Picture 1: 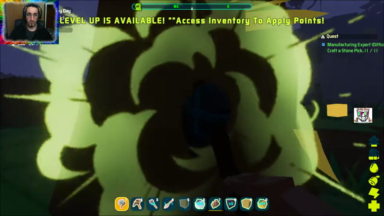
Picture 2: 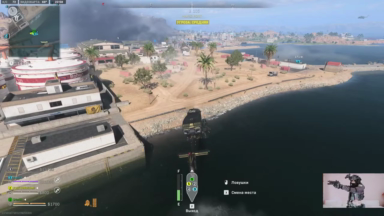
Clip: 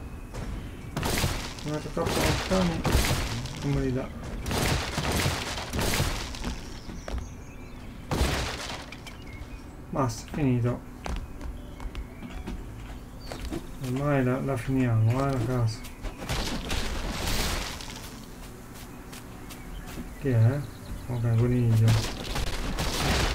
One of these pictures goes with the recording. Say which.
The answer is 1